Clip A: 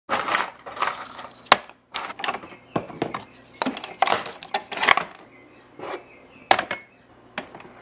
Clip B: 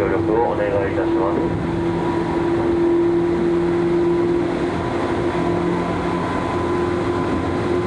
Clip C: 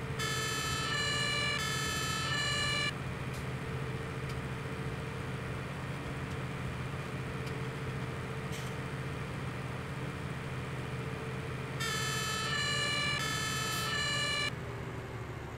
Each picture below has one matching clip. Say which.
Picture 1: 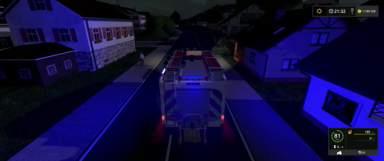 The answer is C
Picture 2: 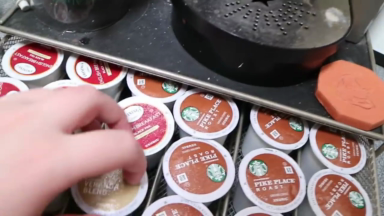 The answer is A